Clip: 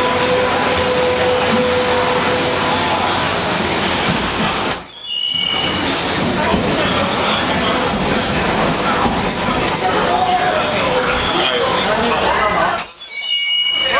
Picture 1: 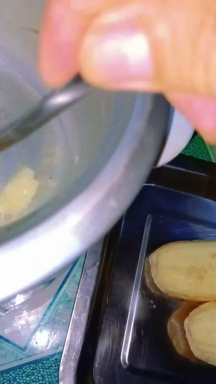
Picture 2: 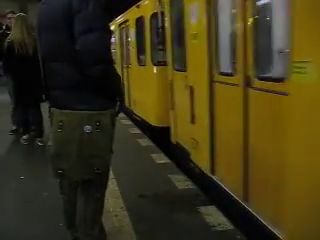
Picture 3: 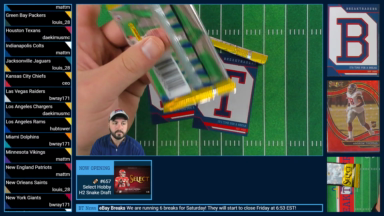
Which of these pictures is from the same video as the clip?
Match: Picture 2